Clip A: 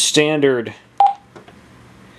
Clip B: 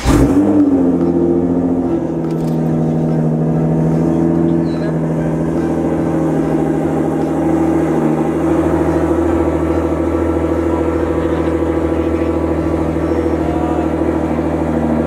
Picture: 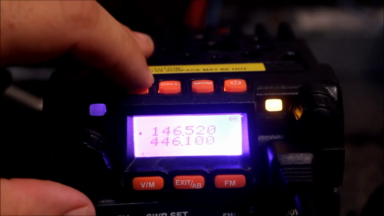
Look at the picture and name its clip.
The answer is A